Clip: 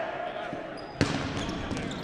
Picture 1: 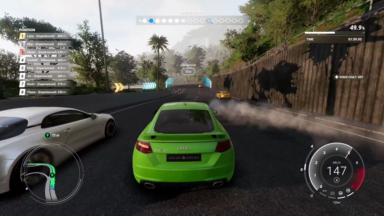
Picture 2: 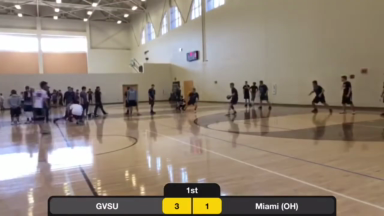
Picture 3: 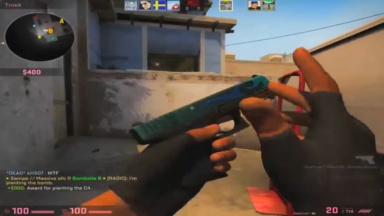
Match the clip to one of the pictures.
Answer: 2